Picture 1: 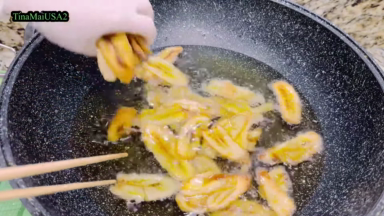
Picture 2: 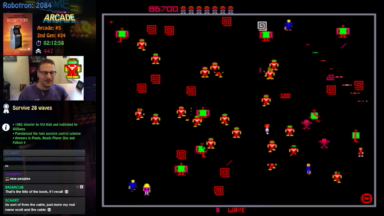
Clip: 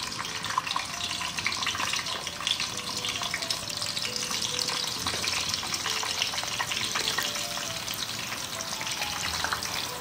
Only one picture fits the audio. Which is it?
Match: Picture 1